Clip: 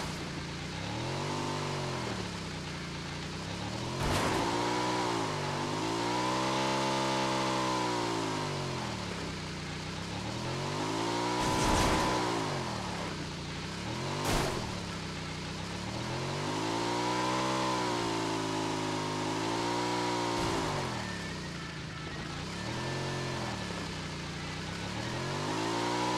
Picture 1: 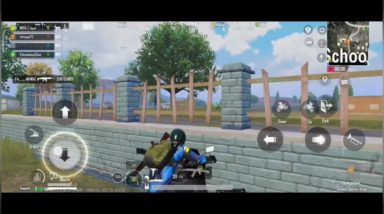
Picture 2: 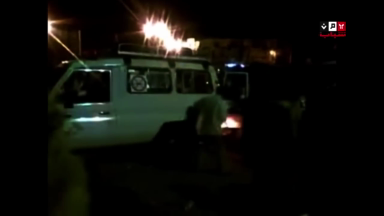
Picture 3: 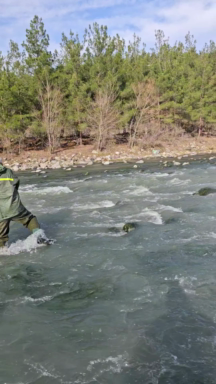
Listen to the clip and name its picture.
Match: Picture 1